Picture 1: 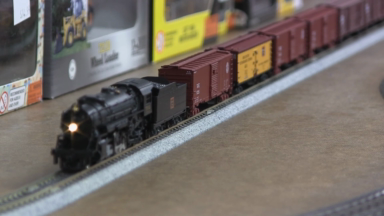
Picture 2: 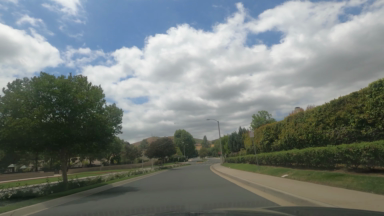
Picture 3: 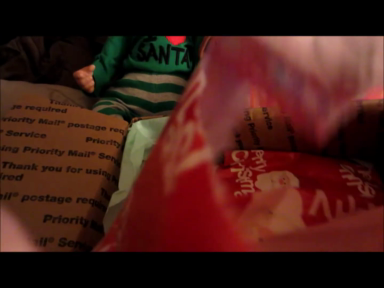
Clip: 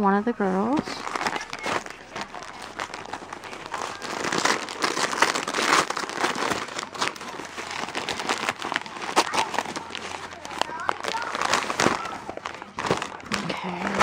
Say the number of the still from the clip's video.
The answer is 3